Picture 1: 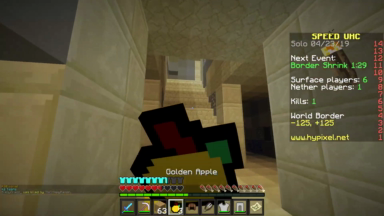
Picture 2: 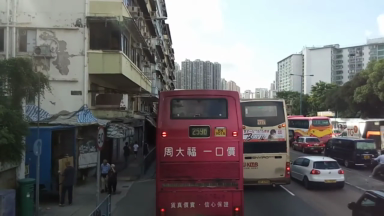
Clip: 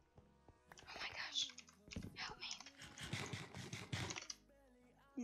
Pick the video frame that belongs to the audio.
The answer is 1